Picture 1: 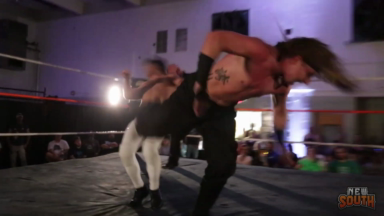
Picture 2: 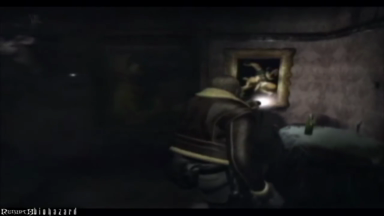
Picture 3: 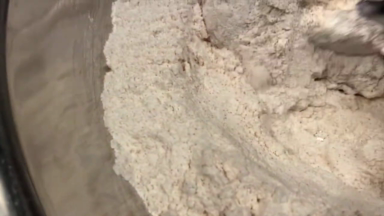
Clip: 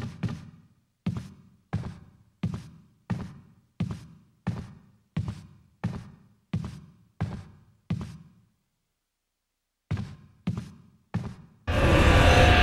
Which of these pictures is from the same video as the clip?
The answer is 2